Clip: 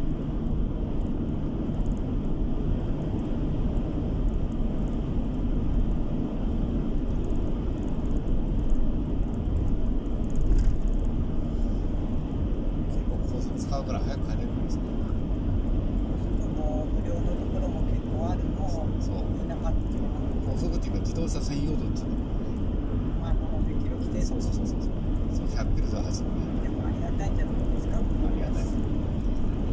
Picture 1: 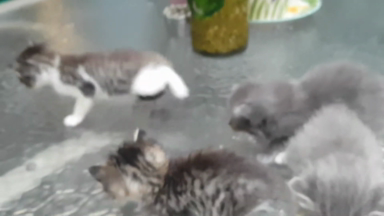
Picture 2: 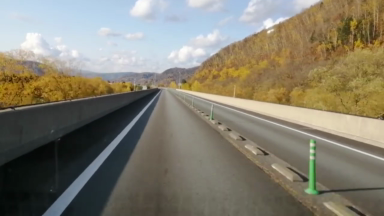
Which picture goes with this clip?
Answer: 2